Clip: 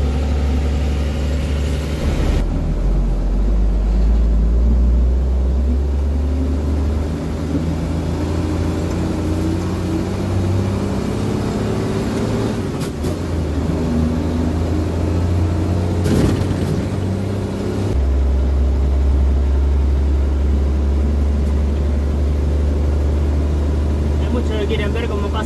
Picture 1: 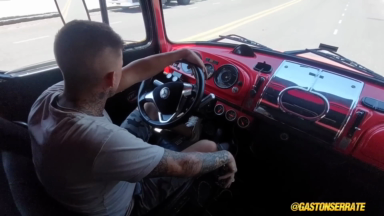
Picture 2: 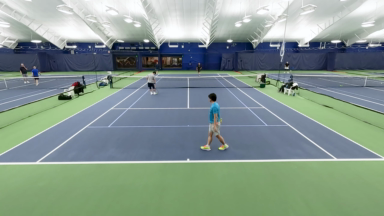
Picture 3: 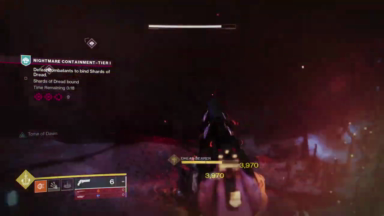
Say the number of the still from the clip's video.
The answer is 1